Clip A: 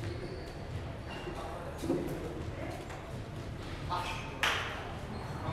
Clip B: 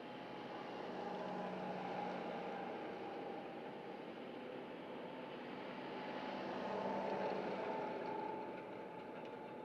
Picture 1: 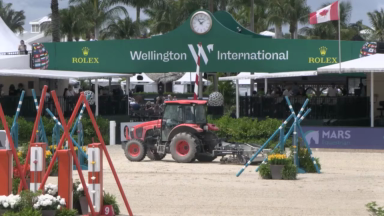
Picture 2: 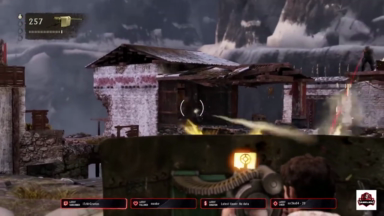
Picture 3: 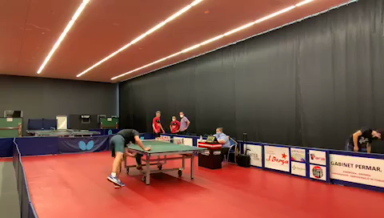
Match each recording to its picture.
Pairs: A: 3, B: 1